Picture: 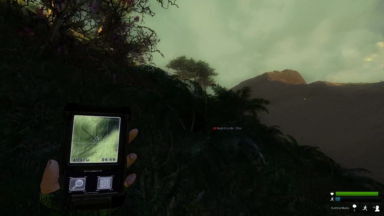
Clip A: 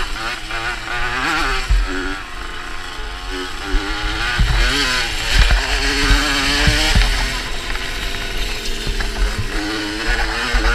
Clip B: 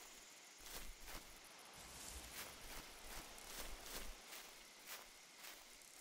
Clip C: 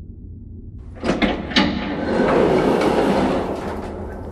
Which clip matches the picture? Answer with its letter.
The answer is B